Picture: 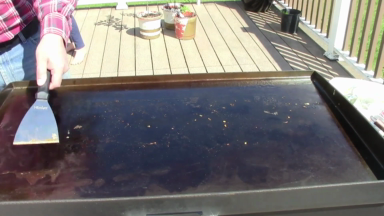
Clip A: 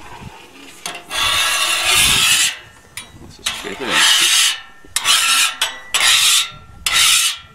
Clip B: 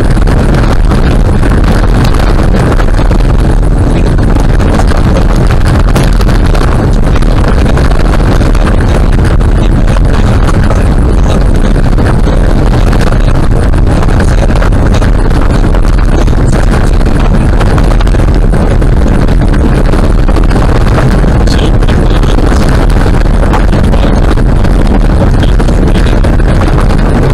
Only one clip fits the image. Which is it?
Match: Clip A